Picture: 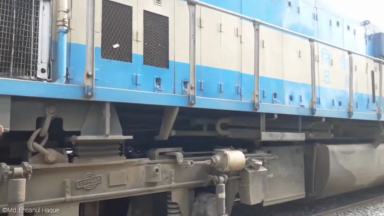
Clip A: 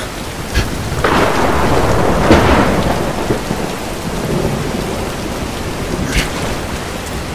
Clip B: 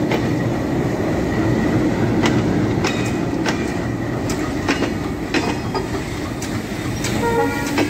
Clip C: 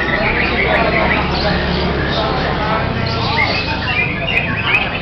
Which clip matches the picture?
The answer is B